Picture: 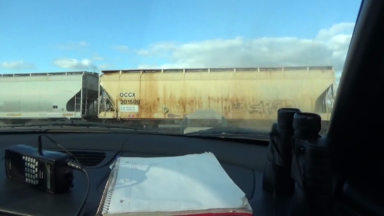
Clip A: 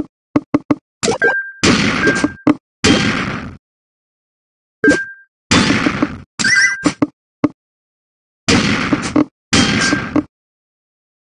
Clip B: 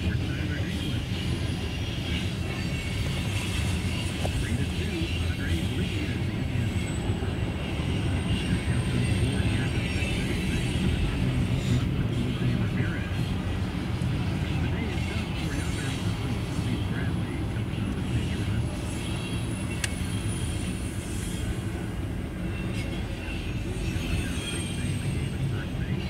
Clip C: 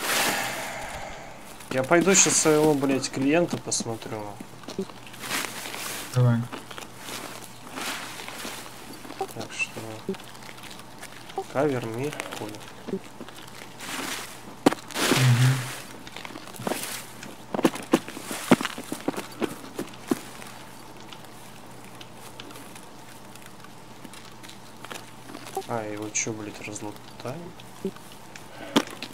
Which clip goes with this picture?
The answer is B